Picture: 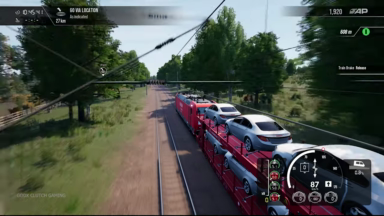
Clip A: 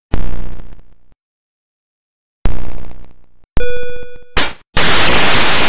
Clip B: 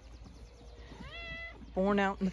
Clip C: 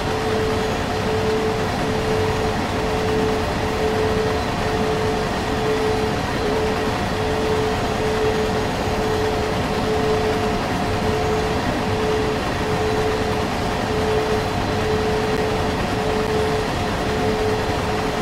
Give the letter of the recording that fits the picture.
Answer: C